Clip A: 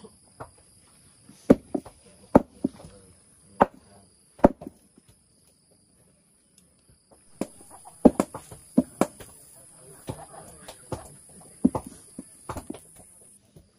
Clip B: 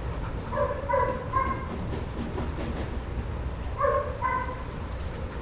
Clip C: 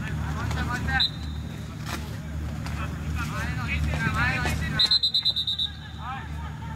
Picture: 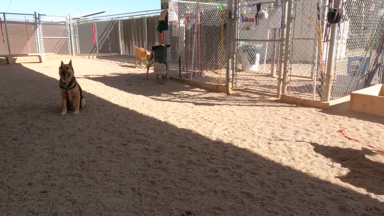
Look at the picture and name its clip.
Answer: B